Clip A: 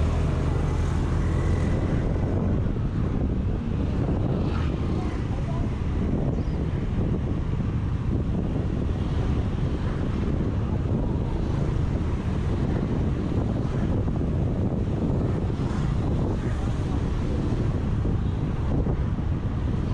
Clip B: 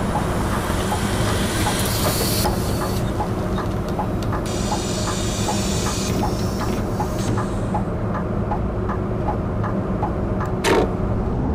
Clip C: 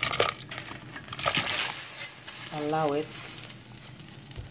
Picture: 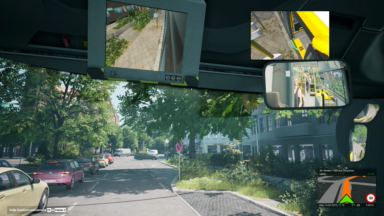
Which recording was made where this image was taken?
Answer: B